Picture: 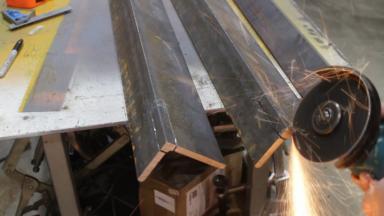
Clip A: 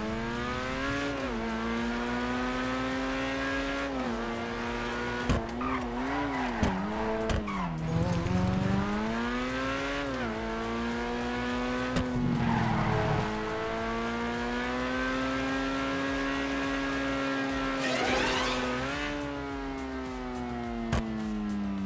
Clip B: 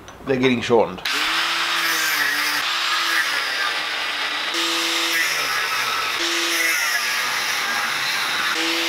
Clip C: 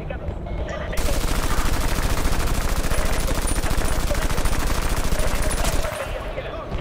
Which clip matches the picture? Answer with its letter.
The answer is B